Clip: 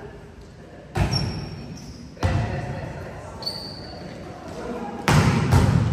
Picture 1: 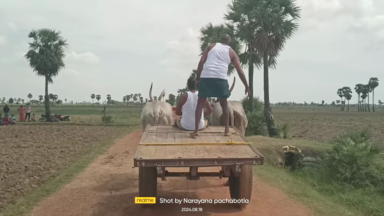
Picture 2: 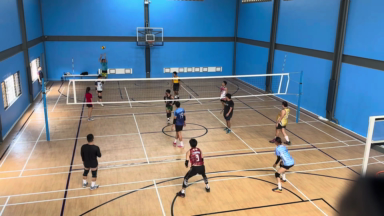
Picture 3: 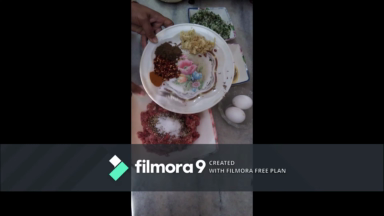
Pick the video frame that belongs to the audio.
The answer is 2